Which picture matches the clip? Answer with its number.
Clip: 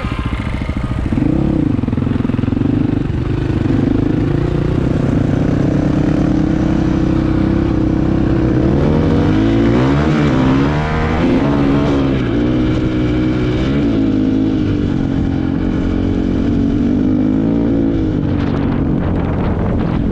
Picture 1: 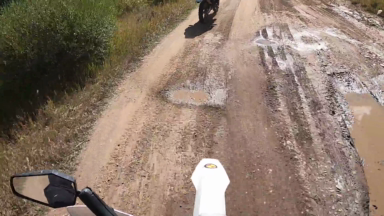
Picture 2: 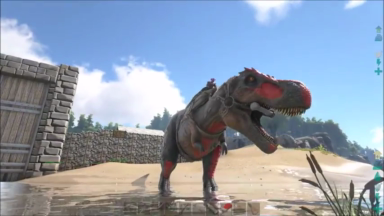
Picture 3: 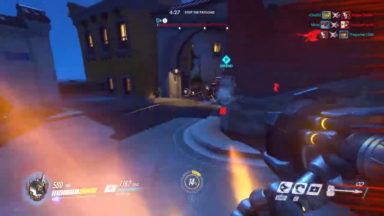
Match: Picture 1